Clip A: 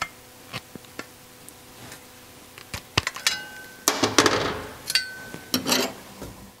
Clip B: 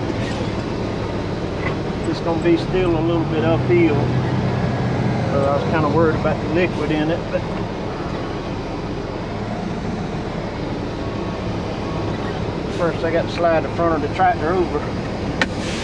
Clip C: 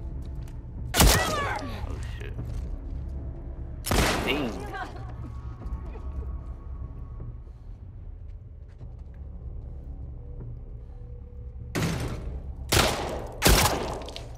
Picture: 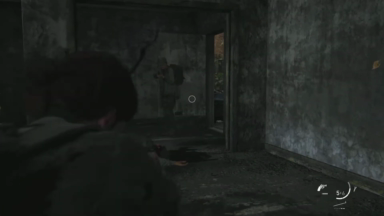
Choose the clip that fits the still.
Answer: C